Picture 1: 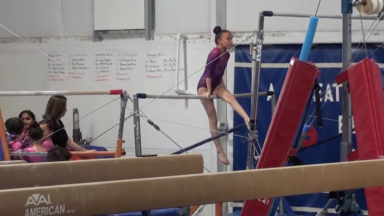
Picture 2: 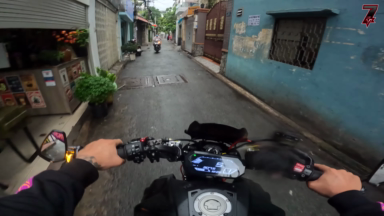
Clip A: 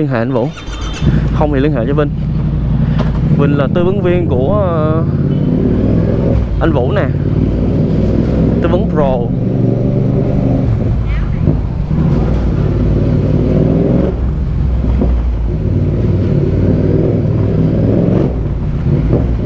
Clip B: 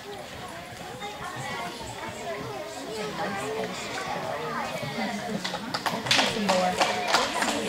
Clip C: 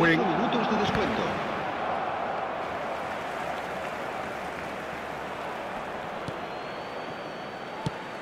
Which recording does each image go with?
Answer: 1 B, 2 A